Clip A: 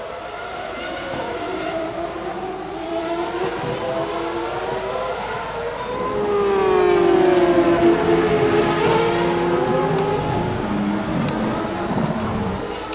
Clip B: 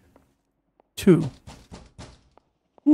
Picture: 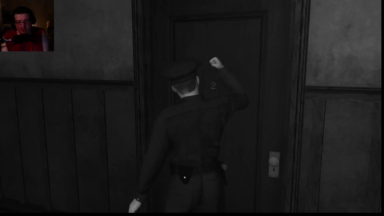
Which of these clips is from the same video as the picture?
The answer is B